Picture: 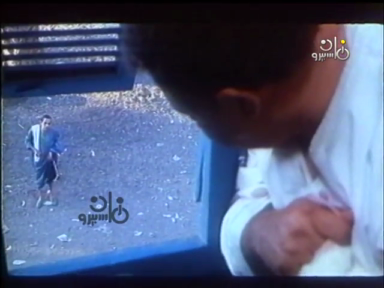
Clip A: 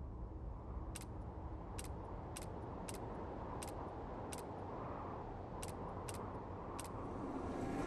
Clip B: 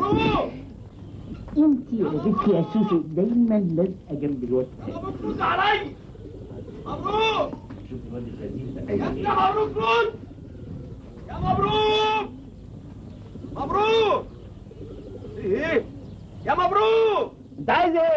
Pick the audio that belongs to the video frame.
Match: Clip B